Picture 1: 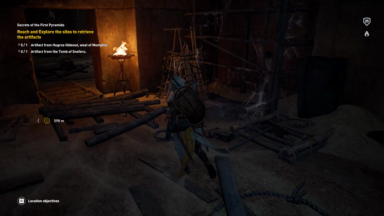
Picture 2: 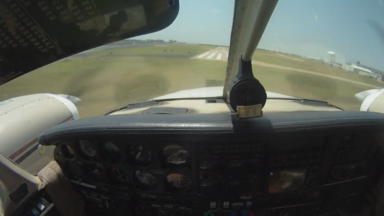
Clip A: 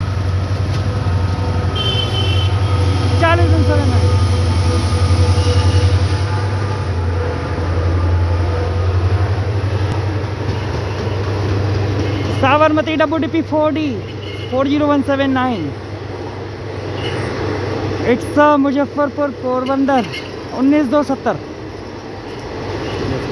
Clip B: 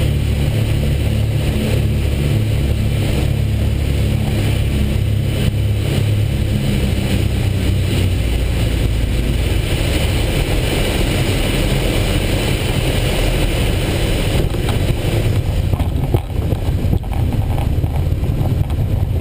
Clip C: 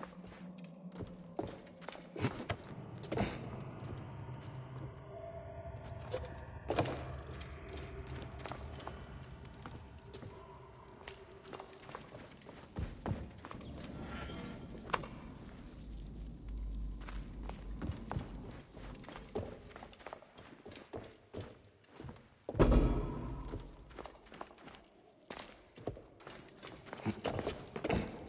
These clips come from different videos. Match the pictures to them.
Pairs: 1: C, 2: B